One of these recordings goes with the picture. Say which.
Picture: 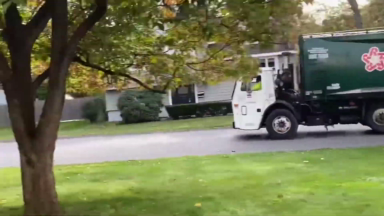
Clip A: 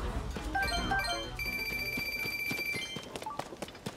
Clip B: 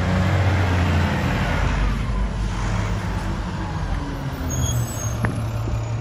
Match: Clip B